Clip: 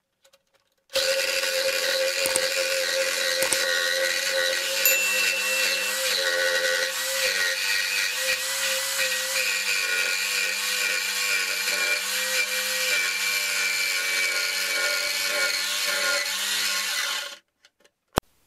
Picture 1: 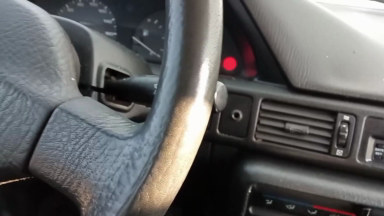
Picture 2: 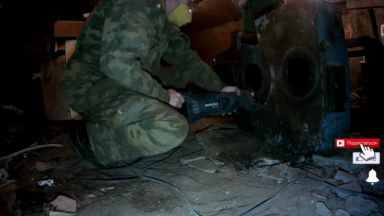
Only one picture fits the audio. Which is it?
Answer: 2